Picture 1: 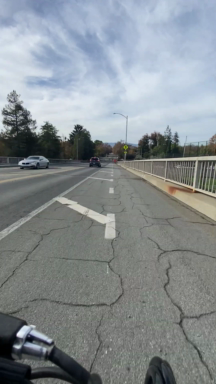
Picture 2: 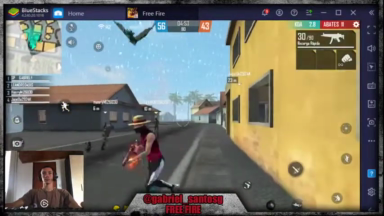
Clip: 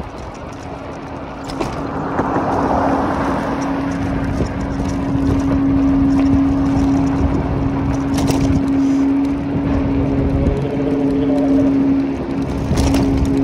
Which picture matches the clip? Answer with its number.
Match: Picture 1